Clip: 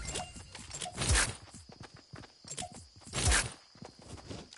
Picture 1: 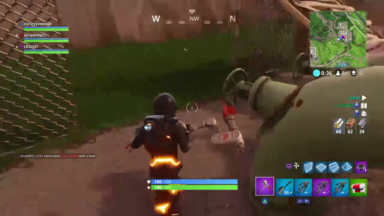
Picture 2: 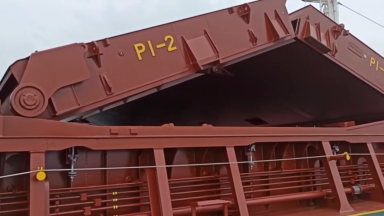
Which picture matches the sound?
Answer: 1